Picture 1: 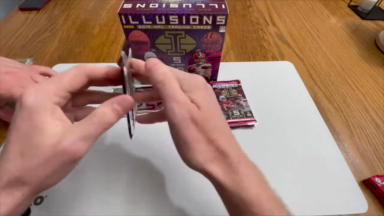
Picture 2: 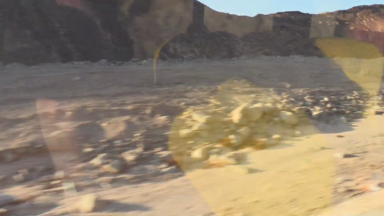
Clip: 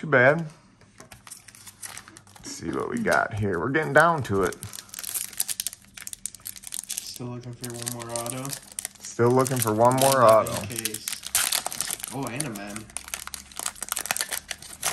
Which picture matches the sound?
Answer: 1